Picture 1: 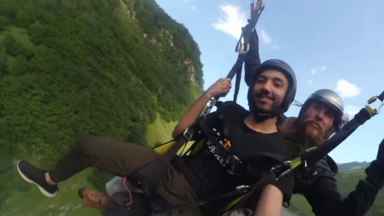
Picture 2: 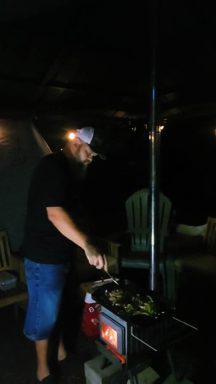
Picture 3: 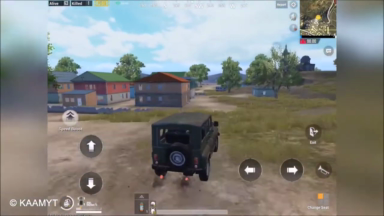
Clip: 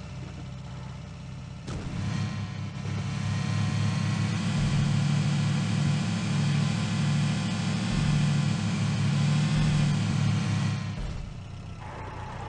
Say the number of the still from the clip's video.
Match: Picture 3